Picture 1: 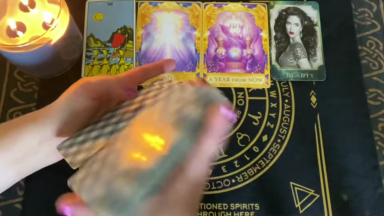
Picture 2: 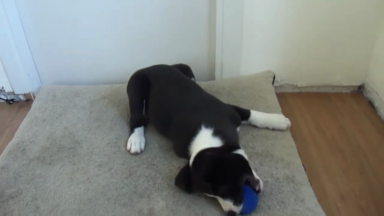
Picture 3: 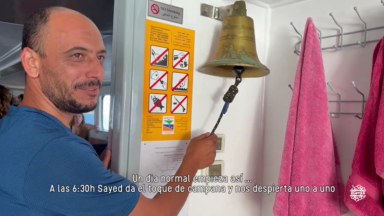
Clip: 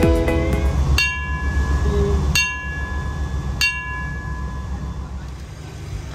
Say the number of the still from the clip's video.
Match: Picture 3